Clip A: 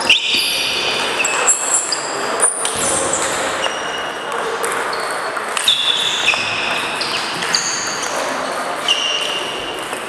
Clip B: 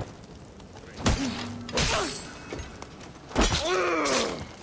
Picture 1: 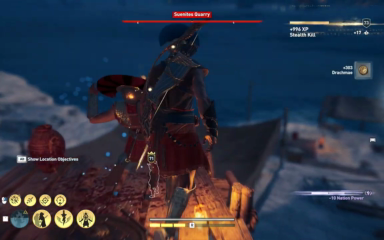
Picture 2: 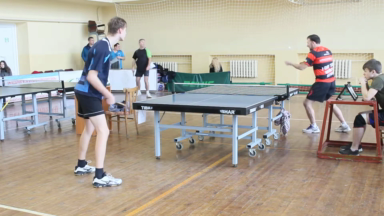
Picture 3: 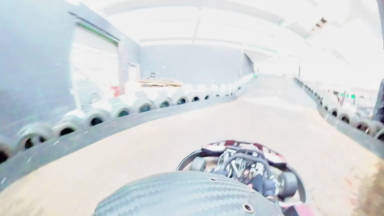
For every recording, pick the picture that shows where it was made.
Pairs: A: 2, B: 1